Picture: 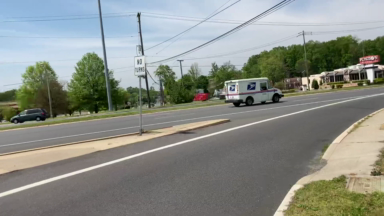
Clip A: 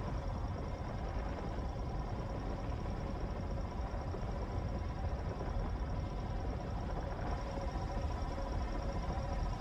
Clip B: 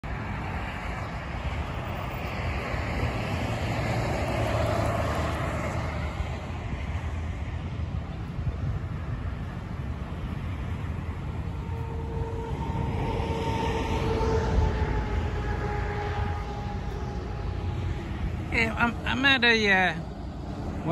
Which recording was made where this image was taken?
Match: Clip B